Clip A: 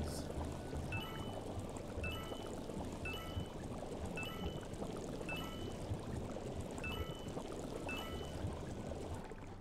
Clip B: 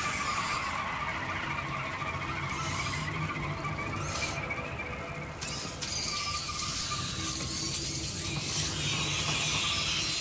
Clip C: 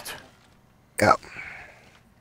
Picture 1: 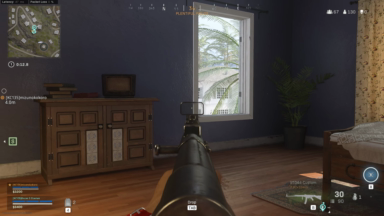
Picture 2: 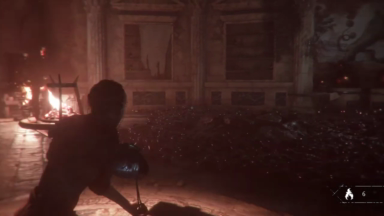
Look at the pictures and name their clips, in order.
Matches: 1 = C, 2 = B